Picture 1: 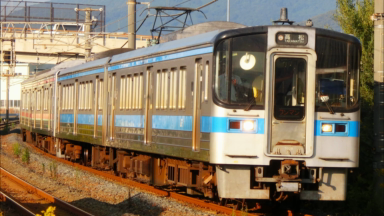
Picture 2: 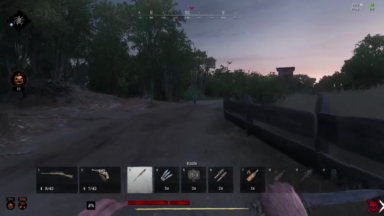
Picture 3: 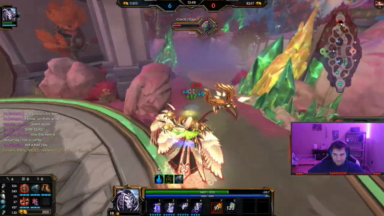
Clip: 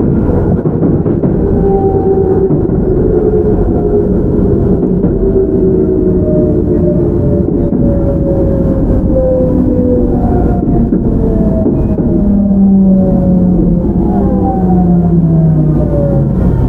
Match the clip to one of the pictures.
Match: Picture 1